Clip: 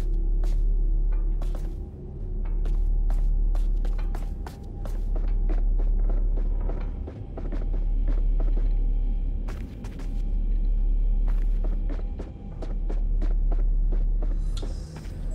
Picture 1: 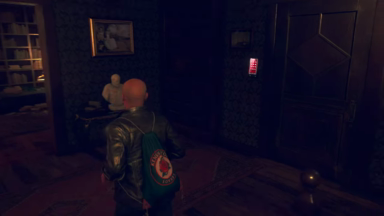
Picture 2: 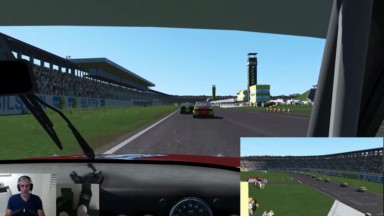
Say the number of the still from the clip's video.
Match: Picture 1